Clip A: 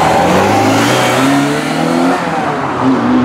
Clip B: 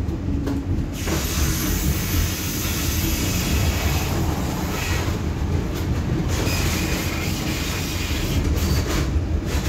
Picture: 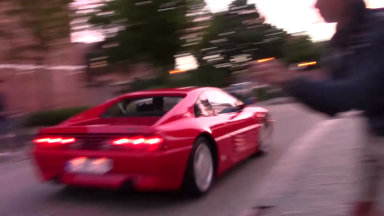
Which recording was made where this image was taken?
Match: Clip A